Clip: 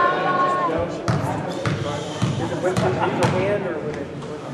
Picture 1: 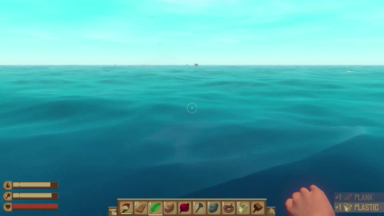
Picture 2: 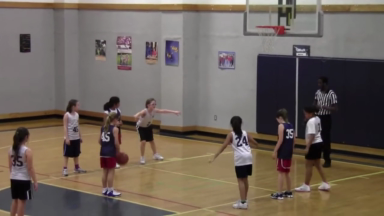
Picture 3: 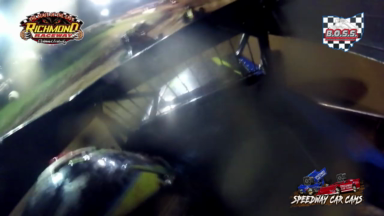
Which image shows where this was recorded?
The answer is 2